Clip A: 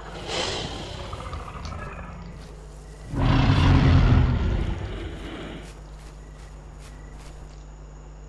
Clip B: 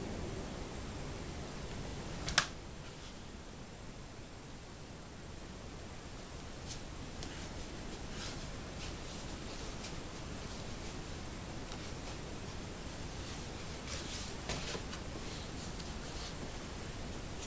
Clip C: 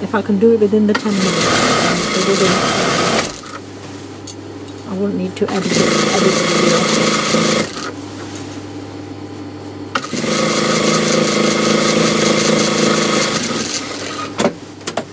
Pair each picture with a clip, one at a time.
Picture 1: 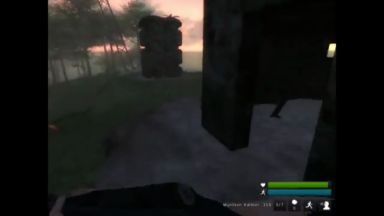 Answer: A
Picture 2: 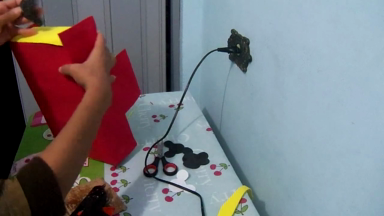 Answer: B